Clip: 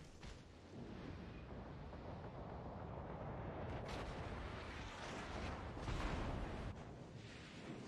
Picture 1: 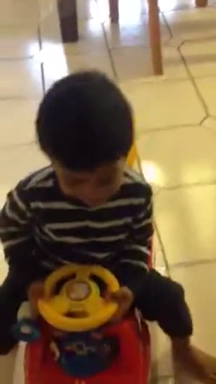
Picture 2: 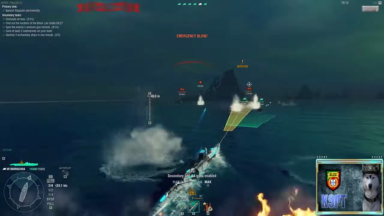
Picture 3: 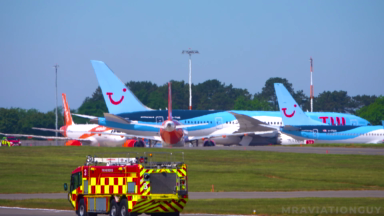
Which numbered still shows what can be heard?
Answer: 2